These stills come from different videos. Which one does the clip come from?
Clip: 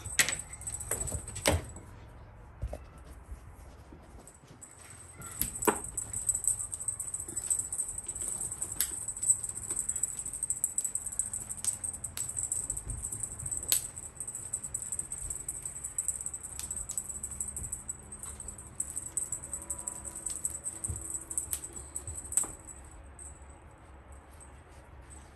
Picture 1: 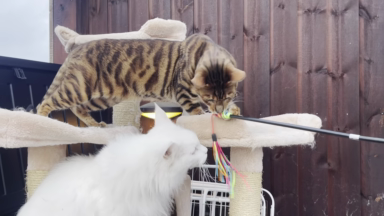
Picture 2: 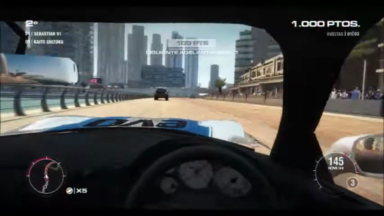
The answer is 1